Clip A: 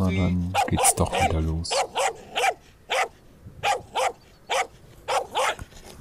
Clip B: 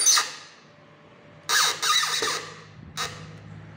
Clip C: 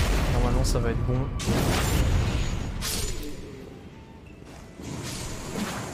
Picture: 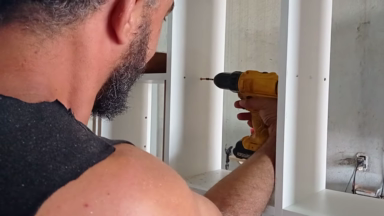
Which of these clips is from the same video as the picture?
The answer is B